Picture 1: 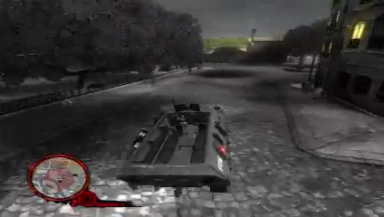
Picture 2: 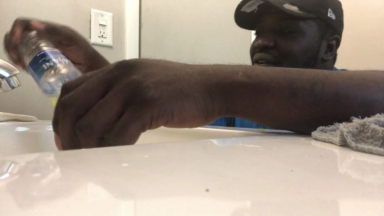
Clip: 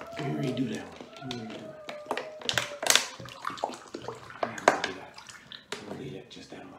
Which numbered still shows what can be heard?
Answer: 2